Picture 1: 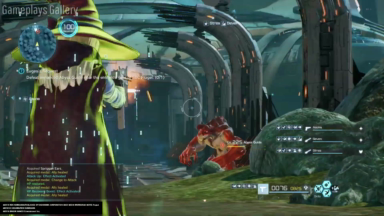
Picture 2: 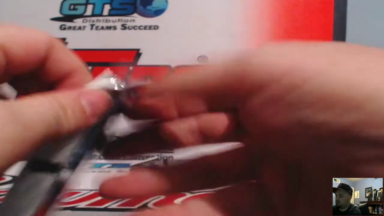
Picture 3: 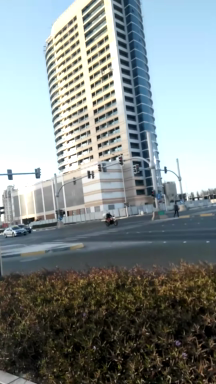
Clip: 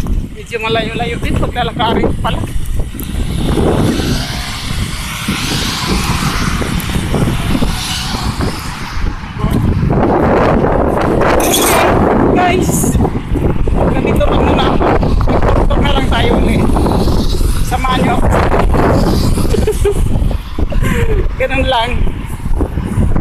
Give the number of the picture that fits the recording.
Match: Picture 3